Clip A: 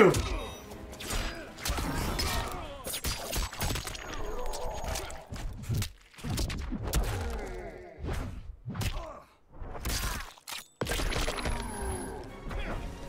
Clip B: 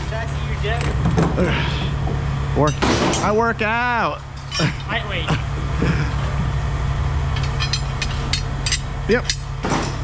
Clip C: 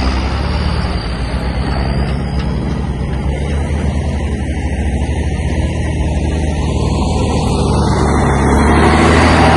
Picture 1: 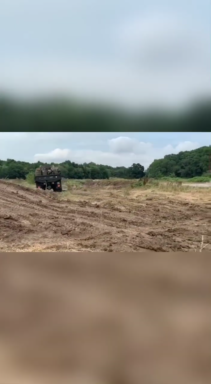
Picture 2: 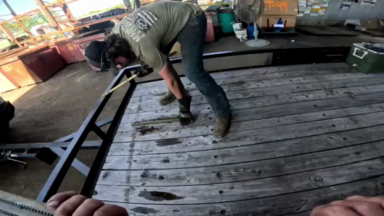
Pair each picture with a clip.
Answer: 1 C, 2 B